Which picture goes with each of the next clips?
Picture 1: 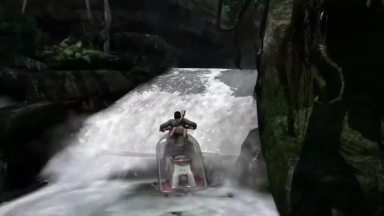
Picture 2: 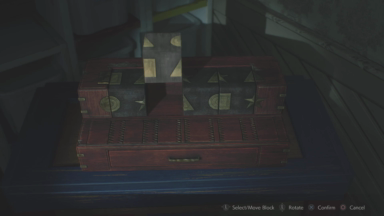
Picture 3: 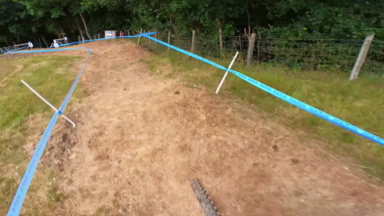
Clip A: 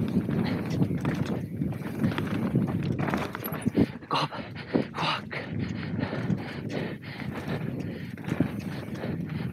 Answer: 3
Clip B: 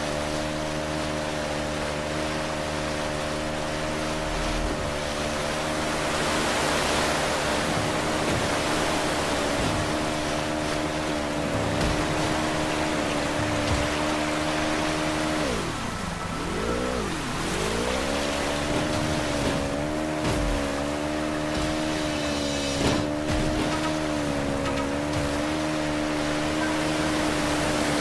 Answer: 1